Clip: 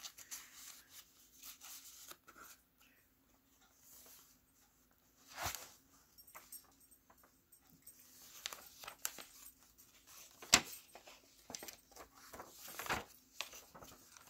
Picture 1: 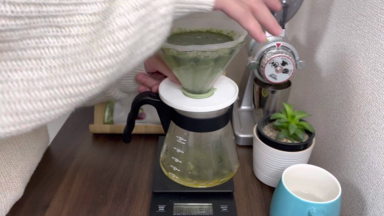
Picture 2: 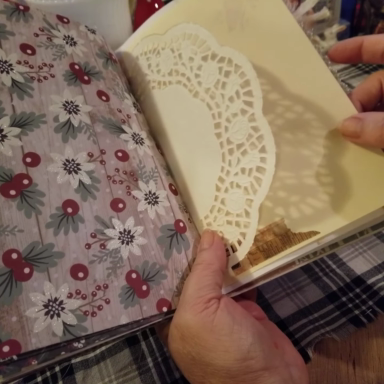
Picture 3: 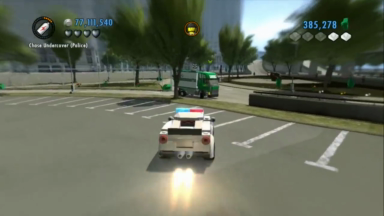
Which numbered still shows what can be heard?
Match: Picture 2